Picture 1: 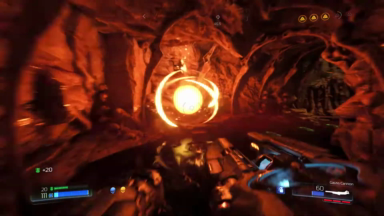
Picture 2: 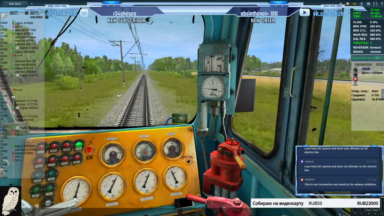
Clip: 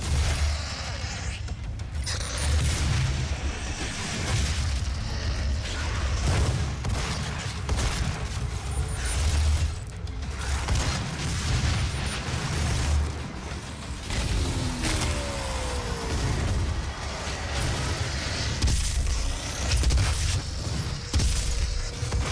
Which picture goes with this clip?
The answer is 1